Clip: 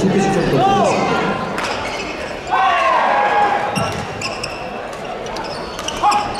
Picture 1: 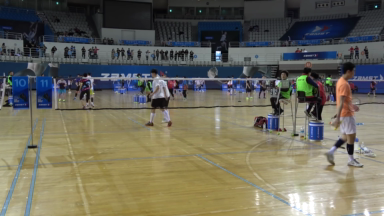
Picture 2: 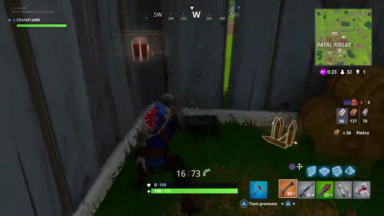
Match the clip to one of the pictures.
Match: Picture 1